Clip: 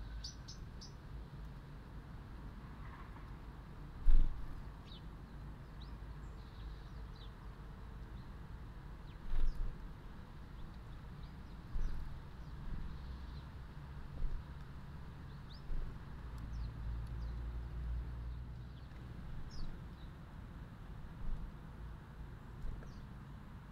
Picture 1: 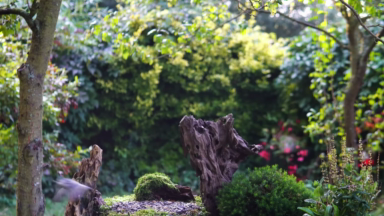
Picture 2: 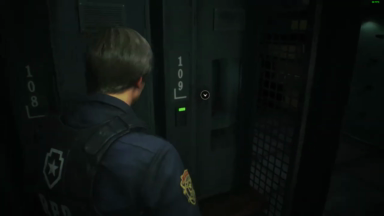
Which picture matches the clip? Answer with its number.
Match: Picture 1